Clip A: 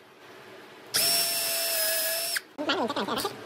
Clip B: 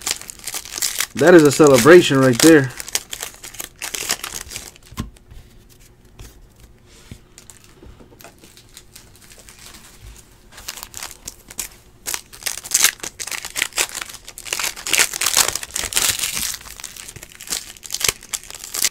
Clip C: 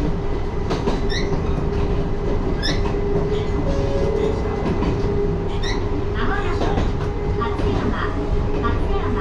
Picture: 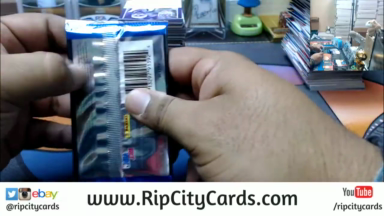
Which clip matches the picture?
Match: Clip B